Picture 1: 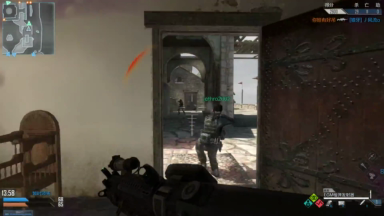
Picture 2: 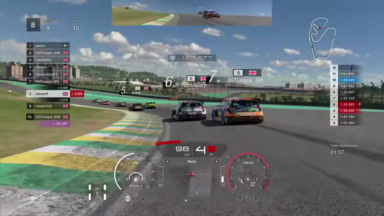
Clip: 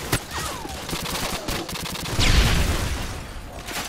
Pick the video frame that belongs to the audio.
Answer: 1